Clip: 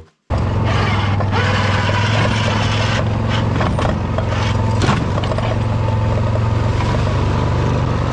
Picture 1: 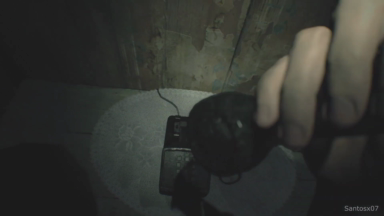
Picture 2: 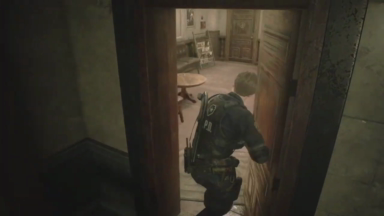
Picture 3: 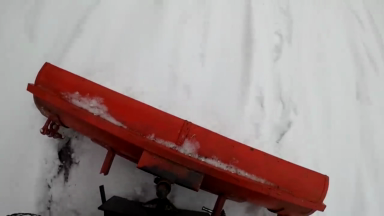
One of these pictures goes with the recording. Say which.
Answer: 3